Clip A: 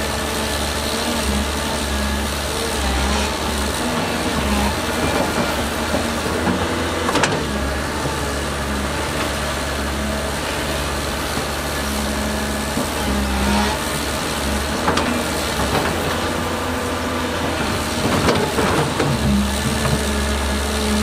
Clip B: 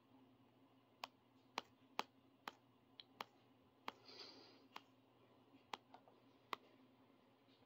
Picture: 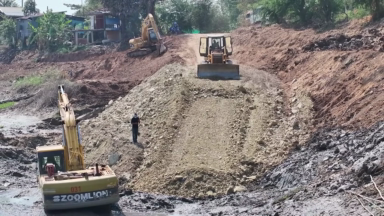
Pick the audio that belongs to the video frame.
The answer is A